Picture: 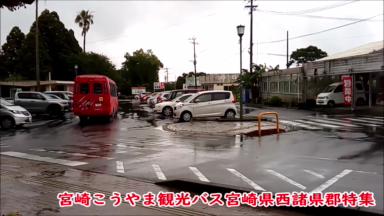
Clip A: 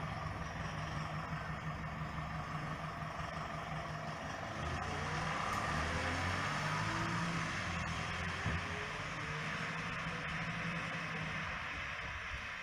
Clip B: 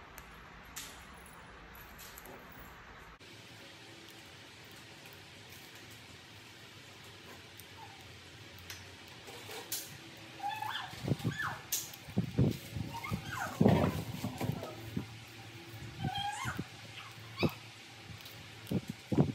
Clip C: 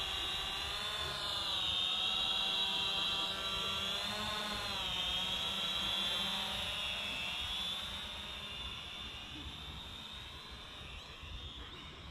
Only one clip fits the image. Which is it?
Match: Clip A